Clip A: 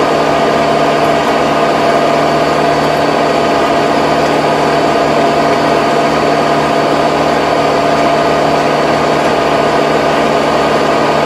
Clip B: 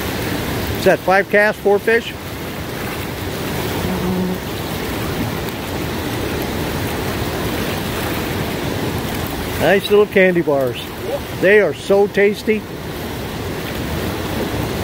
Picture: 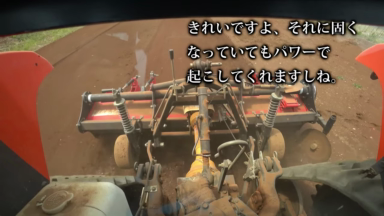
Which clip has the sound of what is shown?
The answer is A